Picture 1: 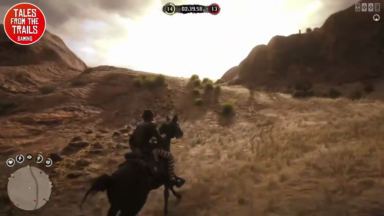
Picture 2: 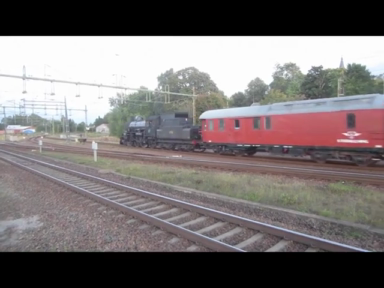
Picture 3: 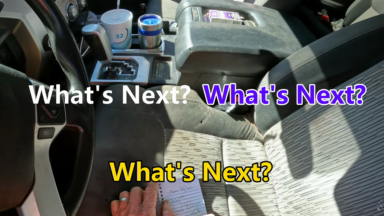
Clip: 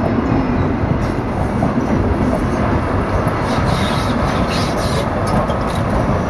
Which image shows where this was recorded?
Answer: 2